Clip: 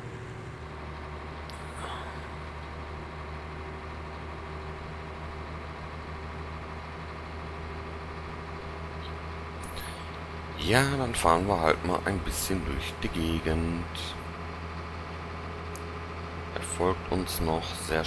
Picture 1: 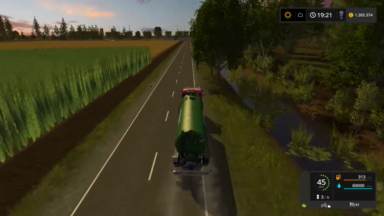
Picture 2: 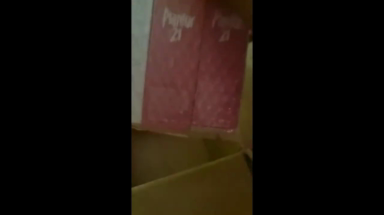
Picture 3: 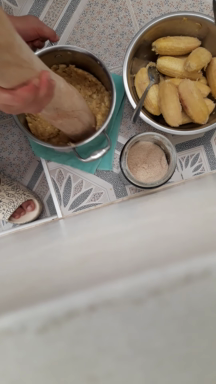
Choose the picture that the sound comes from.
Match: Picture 1